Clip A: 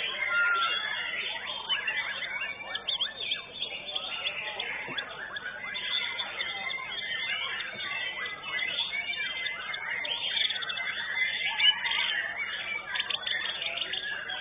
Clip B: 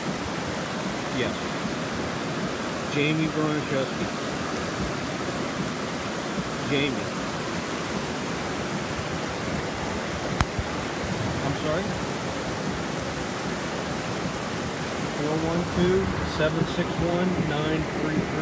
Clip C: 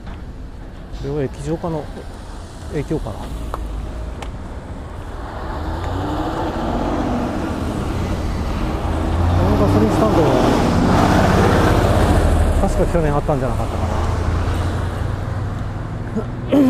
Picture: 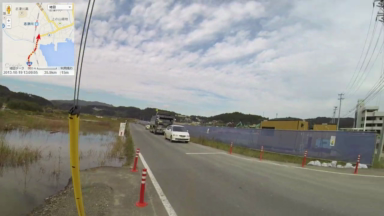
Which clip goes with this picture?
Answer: C